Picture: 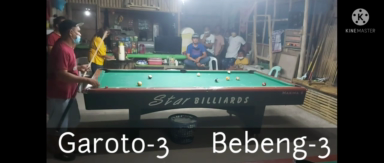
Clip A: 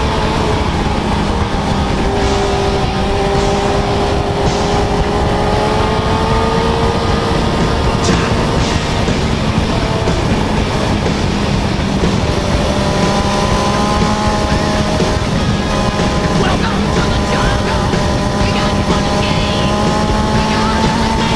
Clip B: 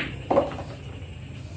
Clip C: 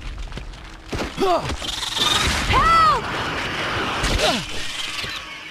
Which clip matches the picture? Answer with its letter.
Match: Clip B